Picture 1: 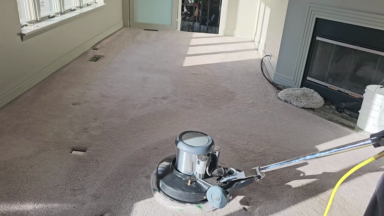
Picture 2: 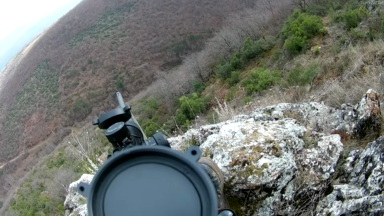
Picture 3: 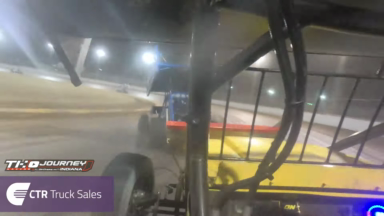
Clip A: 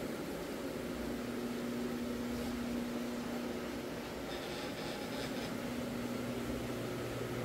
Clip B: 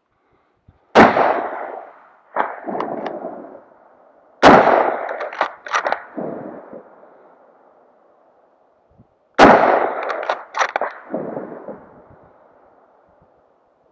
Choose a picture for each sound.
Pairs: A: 1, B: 2